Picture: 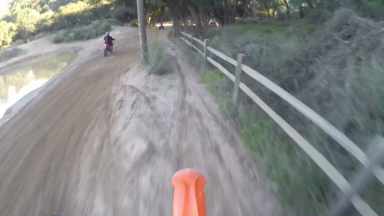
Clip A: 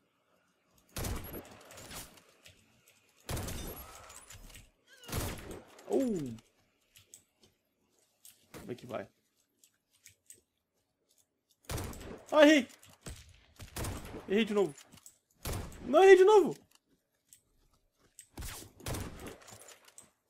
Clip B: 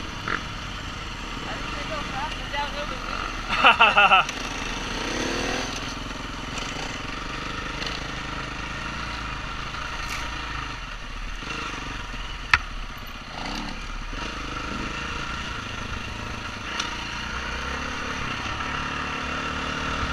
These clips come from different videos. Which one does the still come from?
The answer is B